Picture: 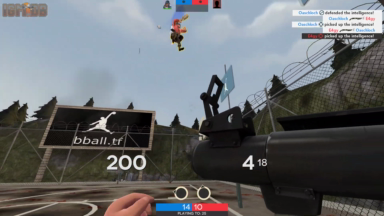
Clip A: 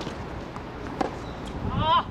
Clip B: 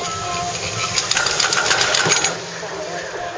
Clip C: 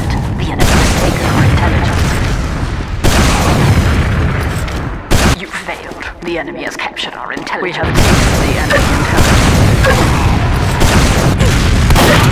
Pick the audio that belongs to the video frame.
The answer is C